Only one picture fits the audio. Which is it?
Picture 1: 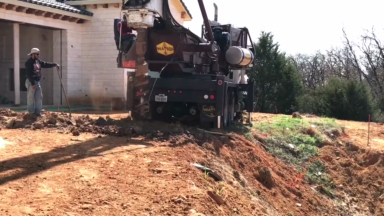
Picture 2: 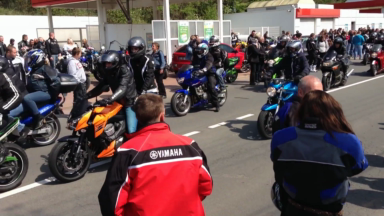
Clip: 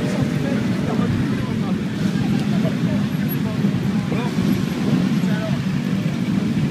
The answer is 2